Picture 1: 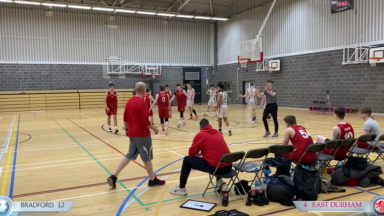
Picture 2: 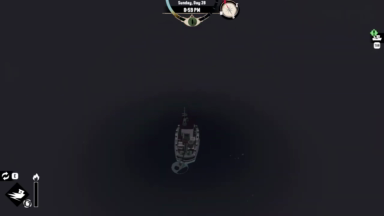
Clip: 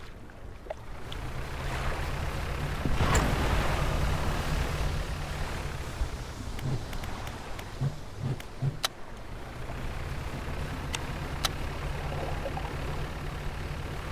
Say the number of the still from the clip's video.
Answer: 2